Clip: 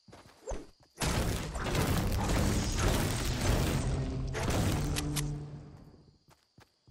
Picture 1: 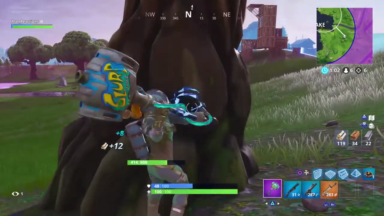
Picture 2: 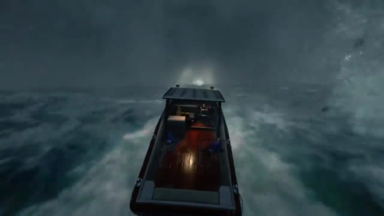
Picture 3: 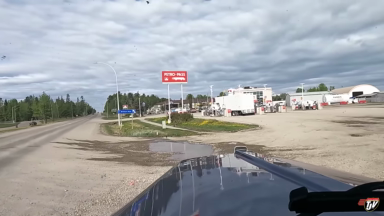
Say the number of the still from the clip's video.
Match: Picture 1